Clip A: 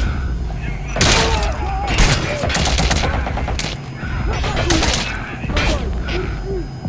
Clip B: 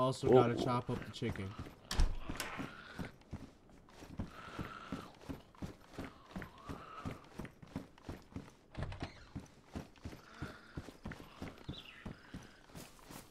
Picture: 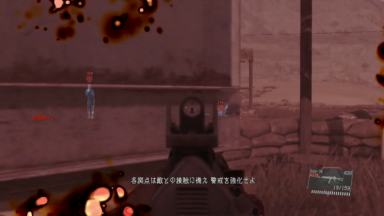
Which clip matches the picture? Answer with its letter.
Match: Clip A